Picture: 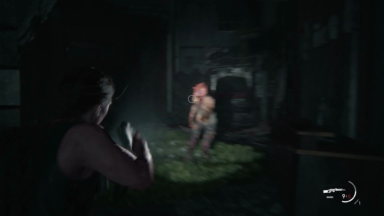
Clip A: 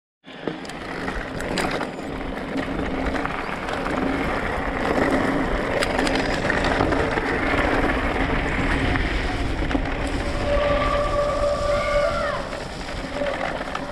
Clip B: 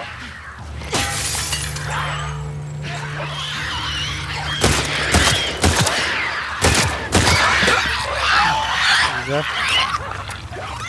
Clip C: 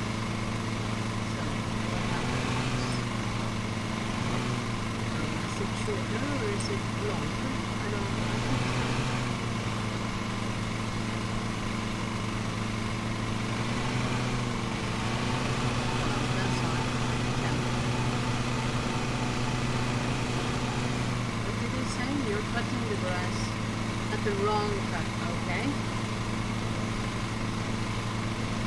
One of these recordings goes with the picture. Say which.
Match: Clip B